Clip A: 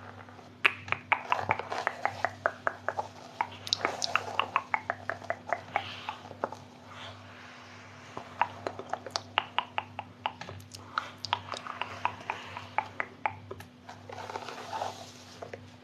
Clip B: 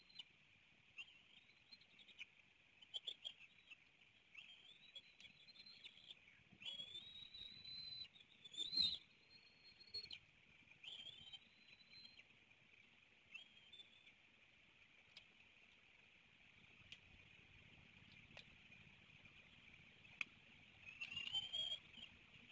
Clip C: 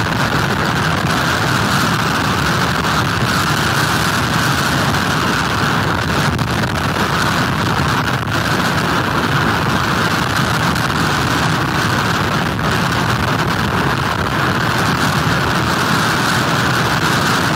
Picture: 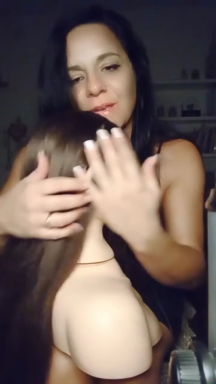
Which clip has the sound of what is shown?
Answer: A